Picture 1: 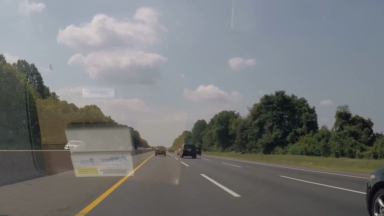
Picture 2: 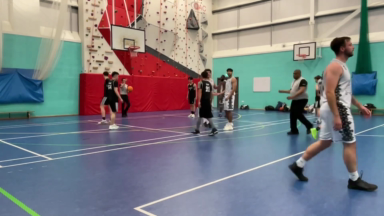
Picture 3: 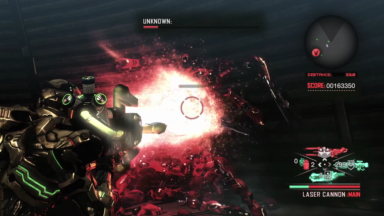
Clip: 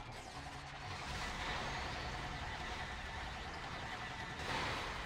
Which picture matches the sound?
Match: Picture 3